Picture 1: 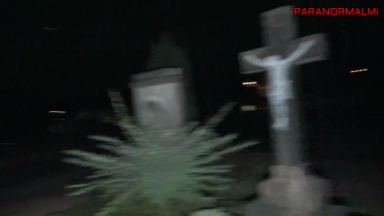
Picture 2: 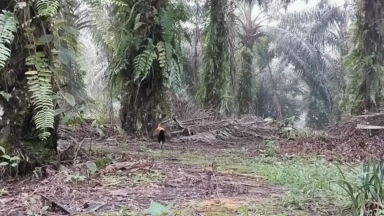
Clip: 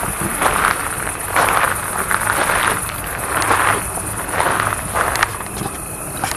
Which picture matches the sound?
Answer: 1